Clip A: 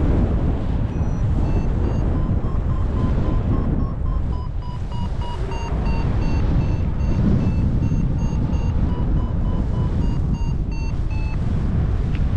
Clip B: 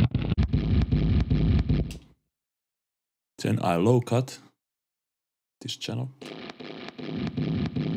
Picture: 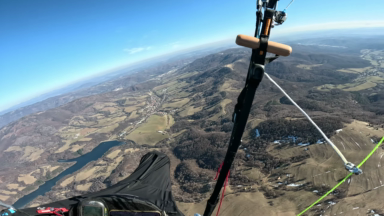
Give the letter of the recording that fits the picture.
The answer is A